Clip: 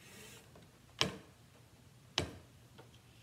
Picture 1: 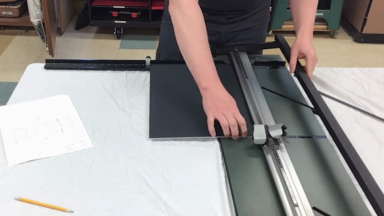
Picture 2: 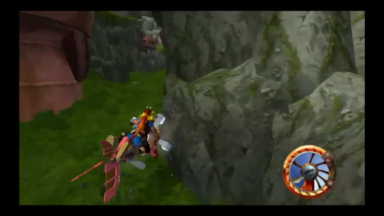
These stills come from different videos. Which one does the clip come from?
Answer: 1